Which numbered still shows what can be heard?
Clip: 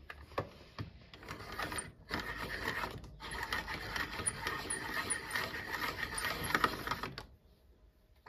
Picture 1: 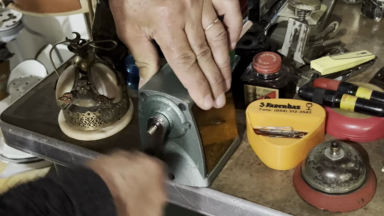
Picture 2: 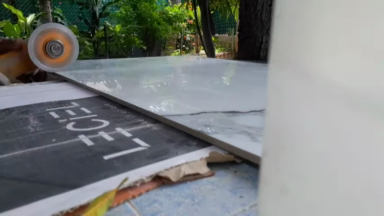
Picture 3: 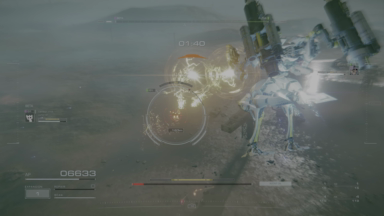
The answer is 1